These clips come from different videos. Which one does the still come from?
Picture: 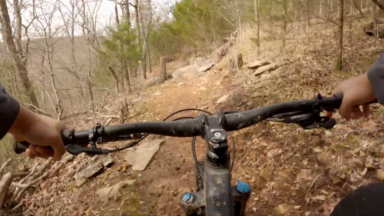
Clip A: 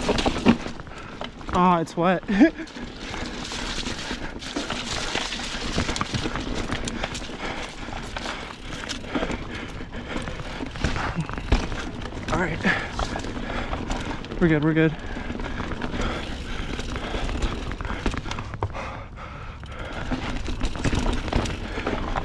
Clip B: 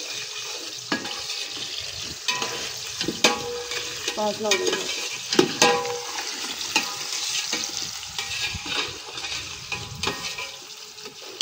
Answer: A